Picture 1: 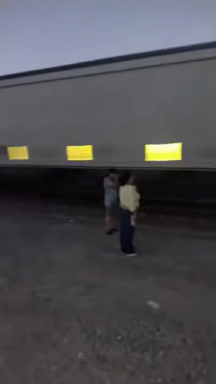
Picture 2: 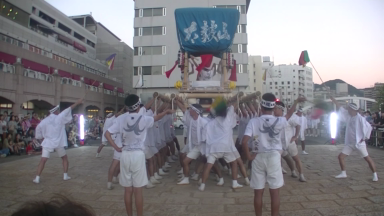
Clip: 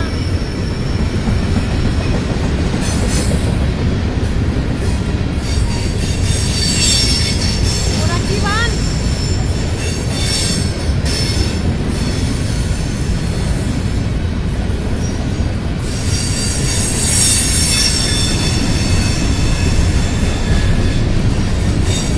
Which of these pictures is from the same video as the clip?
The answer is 1